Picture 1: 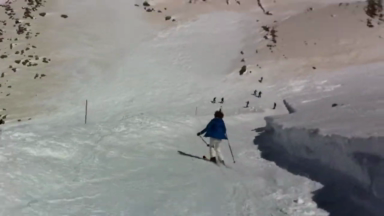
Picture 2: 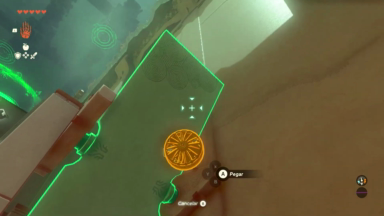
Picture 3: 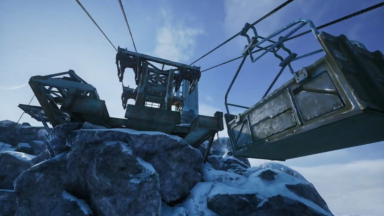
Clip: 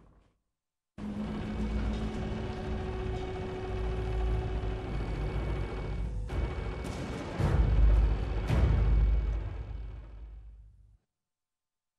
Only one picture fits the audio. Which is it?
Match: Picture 3